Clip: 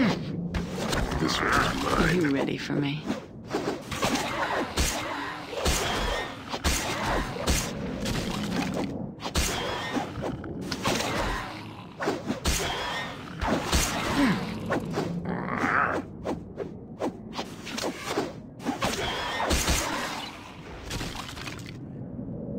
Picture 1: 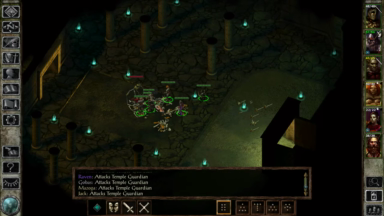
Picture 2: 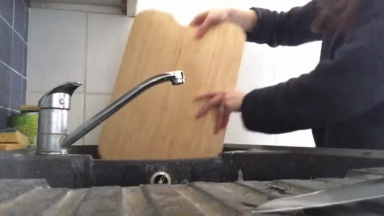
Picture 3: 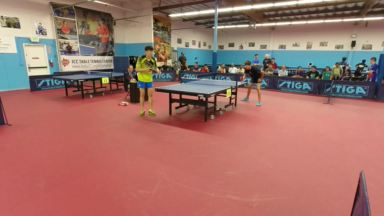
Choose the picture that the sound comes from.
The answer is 1